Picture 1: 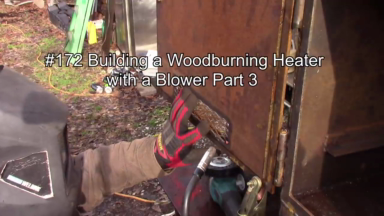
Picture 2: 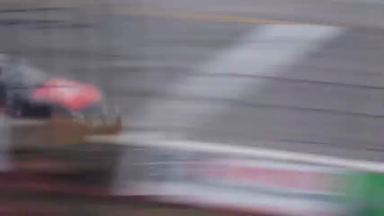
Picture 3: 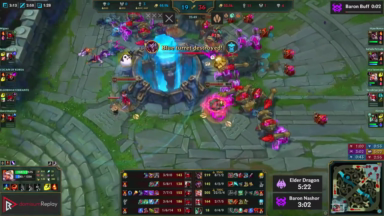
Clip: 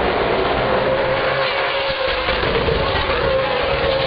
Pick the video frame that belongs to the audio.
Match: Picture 2